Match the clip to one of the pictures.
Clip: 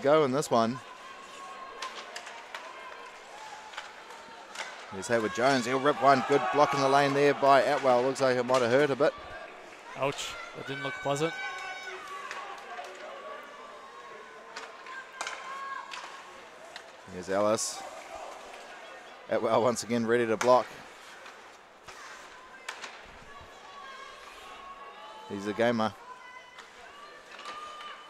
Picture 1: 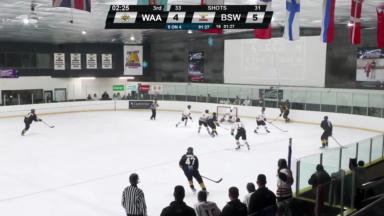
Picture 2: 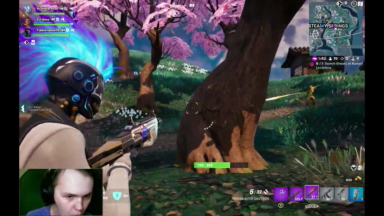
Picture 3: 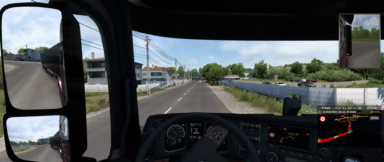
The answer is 1